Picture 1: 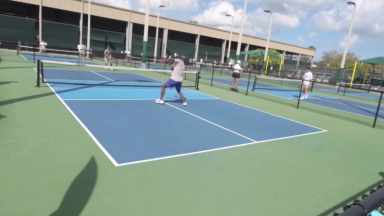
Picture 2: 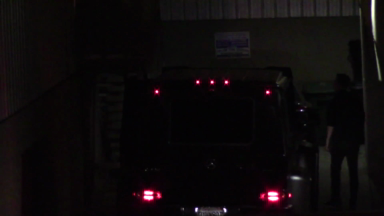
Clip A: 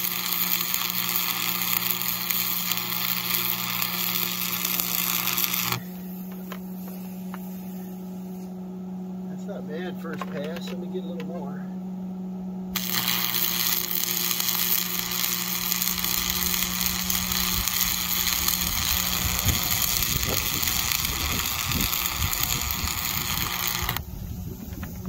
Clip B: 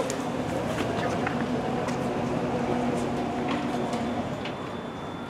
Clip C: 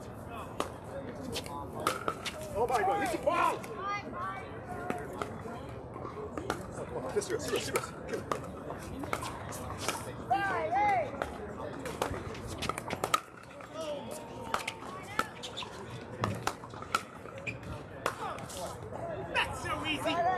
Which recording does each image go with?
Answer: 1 C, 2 B